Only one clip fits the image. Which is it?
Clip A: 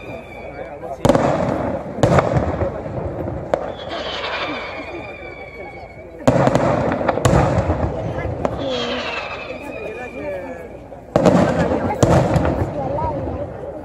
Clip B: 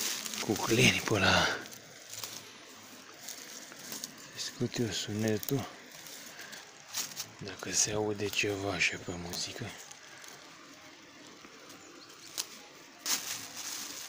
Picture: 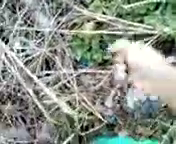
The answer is B